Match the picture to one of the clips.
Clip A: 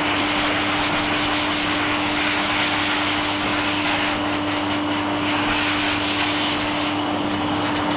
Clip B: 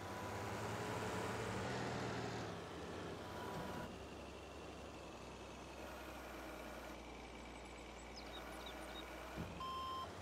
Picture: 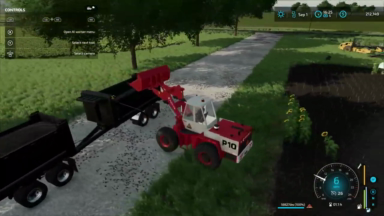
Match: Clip B